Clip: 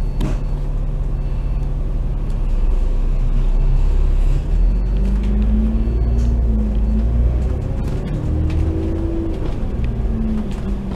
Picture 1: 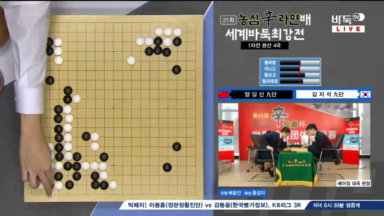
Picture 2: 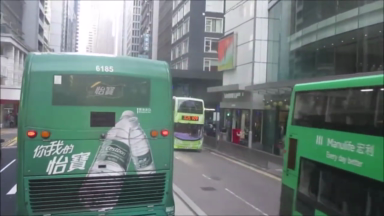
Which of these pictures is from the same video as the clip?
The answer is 2